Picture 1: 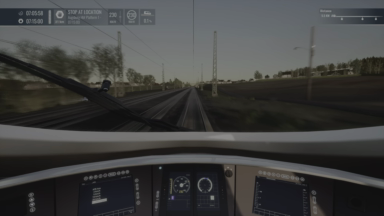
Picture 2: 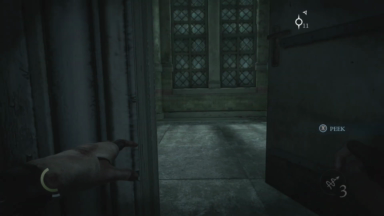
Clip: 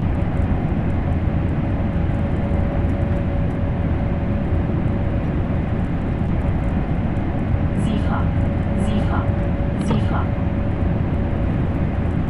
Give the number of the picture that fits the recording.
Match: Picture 1